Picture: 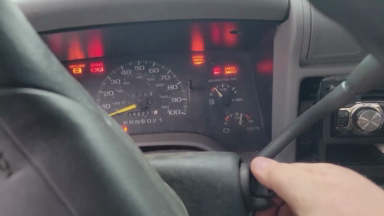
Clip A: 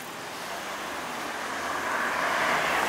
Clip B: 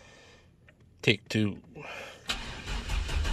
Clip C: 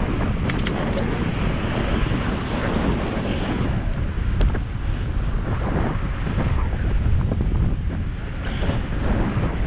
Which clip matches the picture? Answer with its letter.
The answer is B